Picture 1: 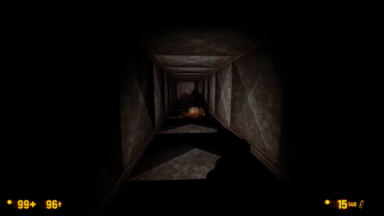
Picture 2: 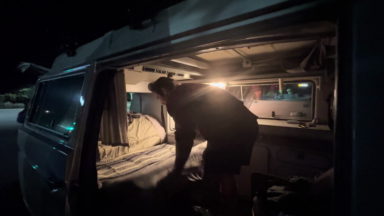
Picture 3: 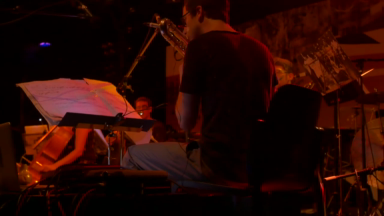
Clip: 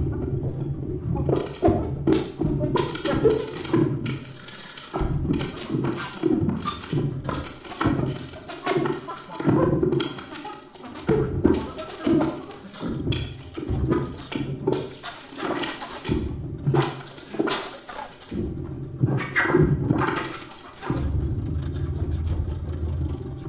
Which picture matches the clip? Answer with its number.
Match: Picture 3